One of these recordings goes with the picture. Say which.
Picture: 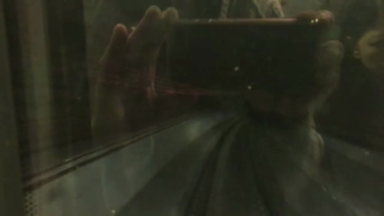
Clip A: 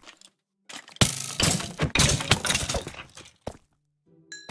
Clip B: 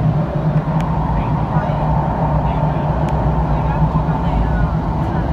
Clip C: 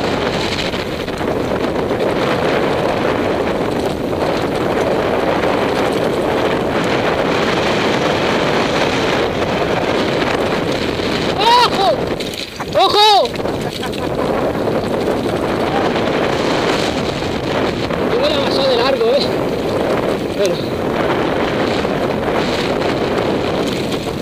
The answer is B